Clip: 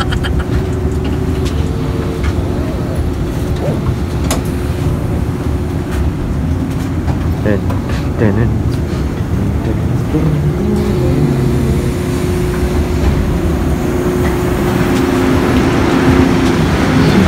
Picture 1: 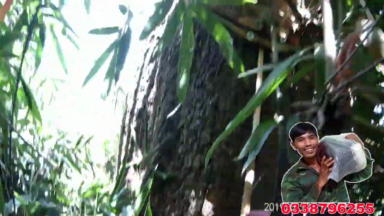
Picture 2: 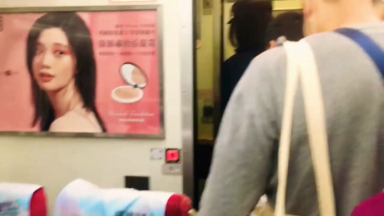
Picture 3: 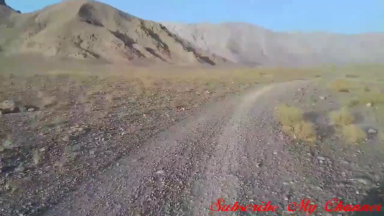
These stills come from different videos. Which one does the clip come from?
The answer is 2